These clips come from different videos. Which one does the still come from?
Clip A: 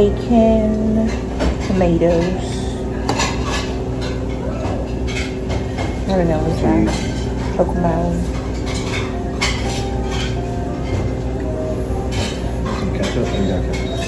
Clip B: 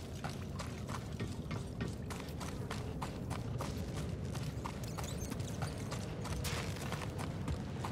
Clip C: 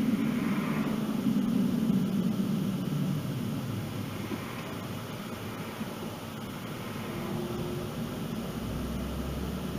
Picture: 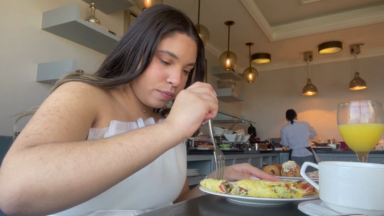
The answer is A